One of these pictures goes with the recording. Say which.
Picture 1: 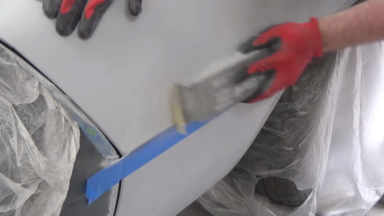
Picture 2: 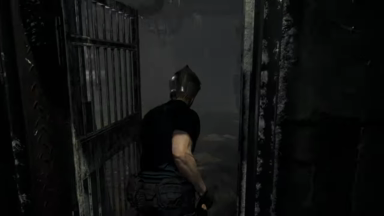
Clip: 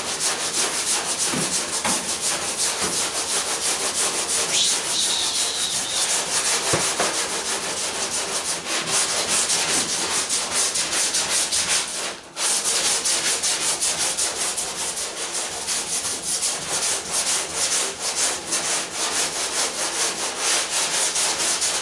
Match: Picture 1